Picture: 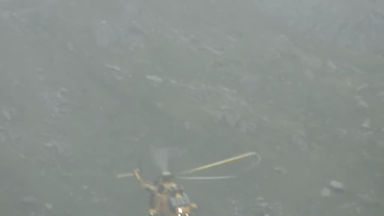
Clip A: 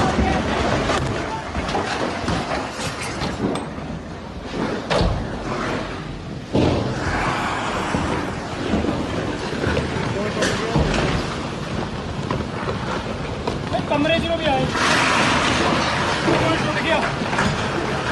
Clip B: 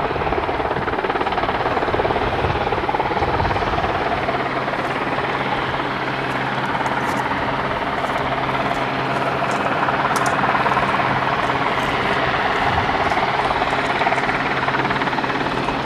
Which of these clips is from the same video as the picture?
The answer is B